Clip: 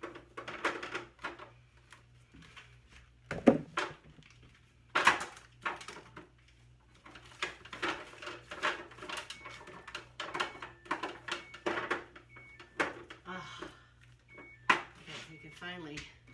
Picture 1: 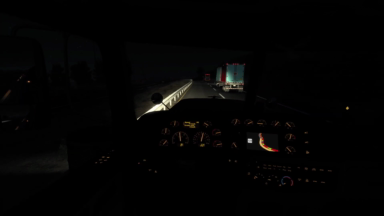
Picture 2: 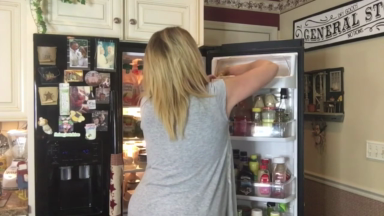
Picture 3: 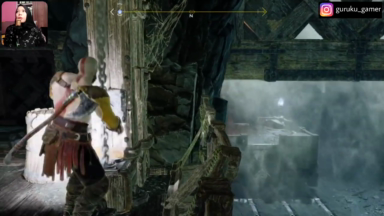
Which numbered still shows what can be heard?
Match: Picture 2